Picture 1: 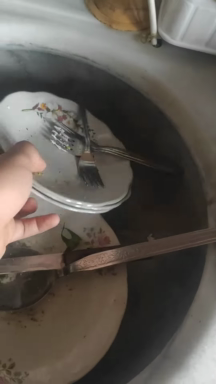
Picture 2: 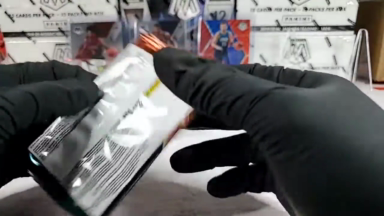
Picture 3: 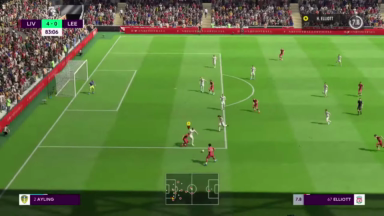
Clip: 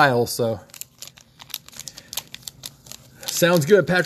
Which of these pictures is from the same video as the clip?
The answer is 2